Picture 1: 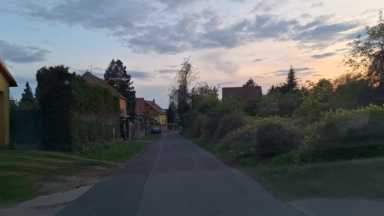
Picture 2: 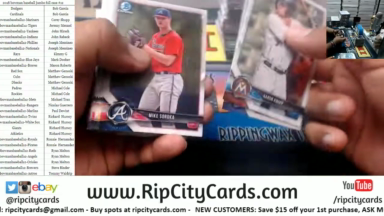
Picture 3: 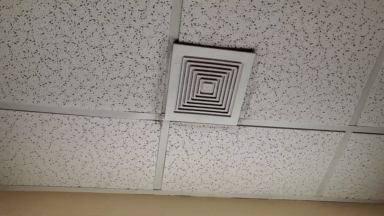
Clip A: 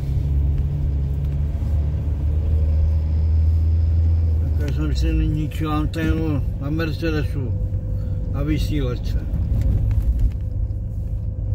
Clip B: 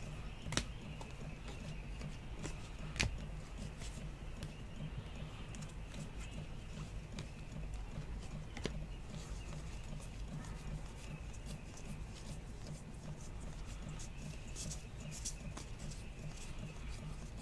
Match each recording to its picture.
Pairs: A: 1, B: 2